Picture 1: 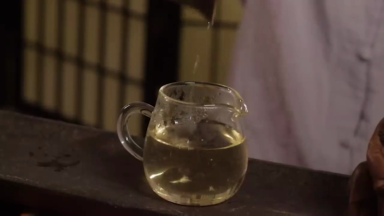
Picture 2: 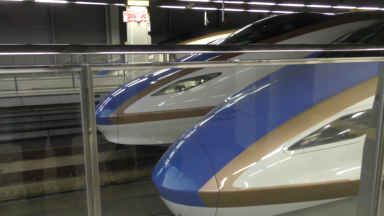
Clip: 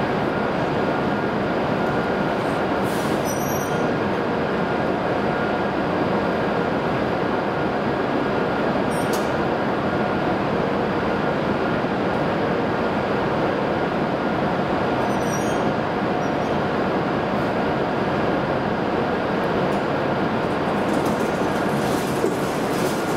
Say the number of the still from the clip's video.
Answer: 2